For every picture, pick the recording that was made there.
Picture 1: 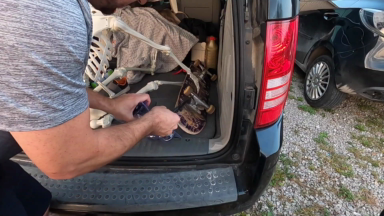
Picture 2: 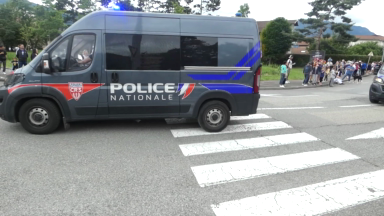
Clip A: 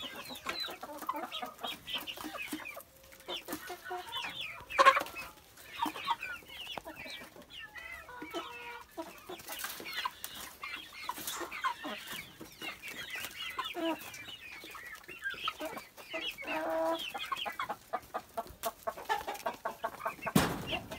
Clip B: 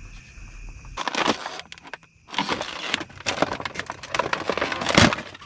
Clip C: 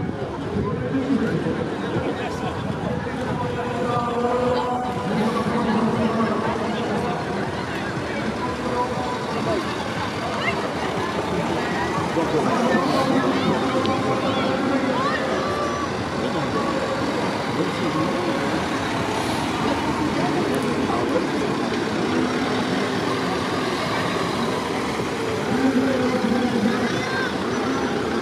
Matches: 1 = B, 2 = C